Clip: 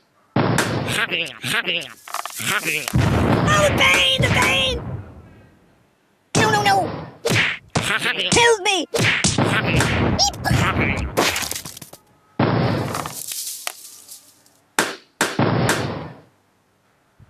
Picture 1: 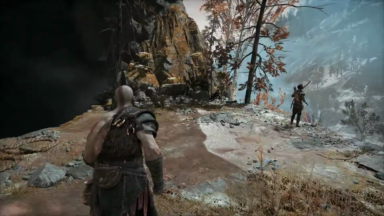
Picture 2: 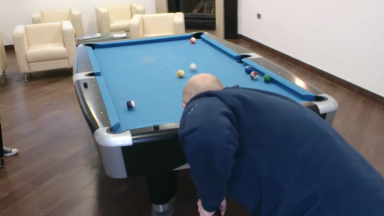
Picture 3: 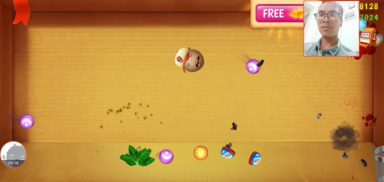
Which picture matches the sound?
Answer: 3